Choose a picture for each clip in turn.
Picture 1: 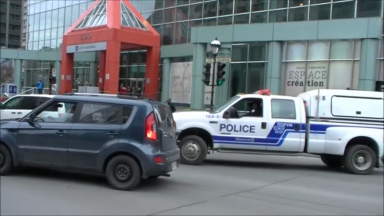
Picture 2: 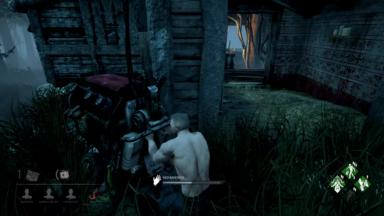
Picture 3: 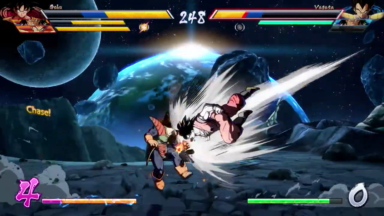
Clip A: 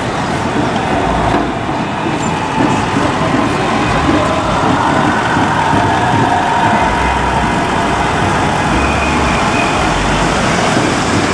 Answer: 1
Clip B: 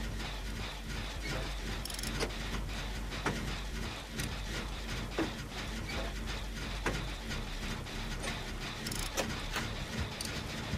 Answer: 2